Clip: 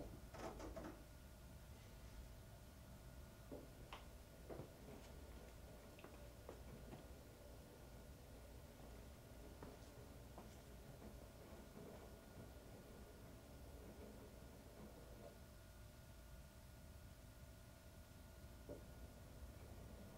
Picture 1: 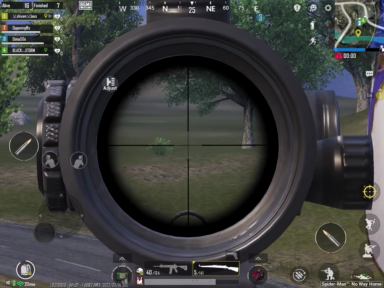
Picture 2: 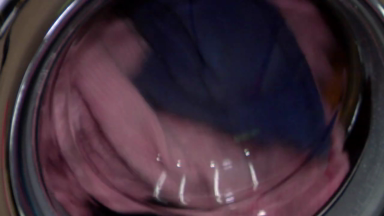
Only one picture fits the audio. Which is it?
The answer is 2